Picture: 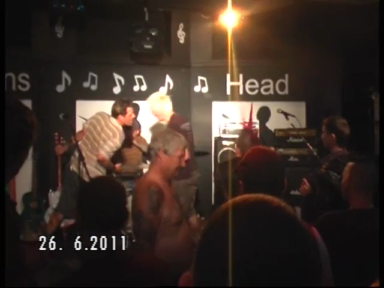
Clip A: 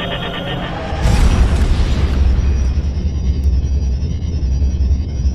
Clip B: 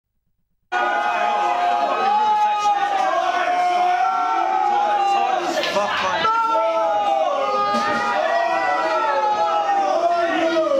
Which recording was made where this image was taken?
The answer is B